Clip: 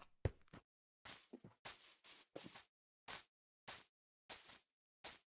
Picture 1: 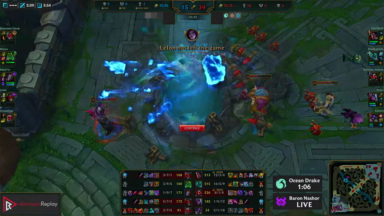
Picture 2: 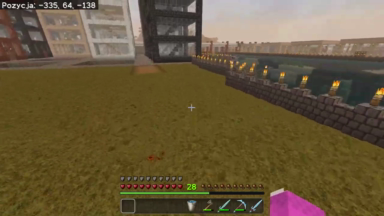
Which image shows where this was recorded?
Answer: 2